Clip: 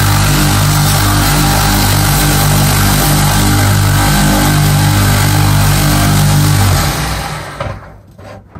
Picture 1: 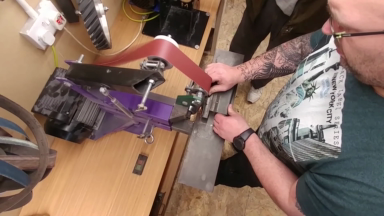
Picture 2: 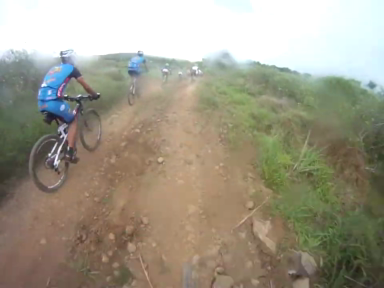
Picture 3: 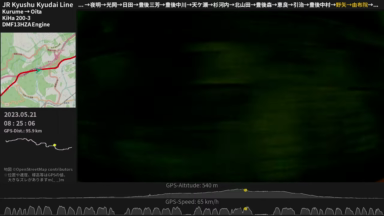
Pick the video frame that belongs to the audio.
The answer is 1